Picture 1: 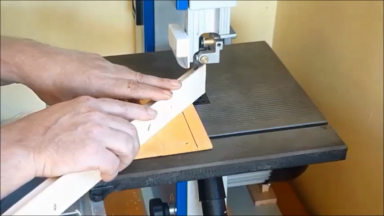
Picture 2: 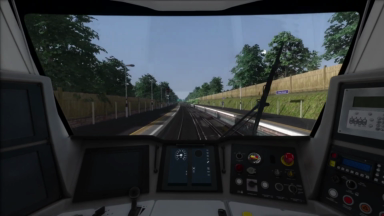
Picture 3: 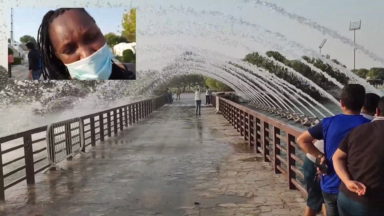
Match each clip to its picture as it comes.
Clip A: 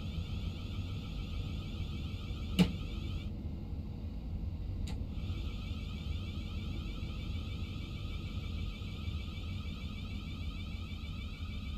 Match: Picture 2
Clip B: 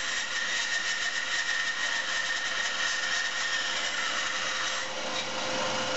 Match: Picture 1